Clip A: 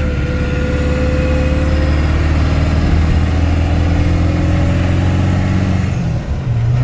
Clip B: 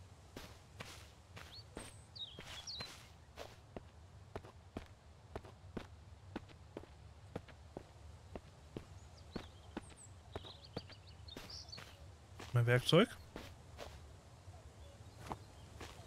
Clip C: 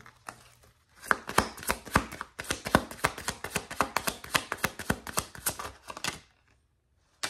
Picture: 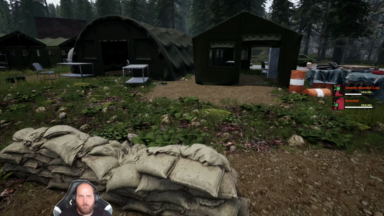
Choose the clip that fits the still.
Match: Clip B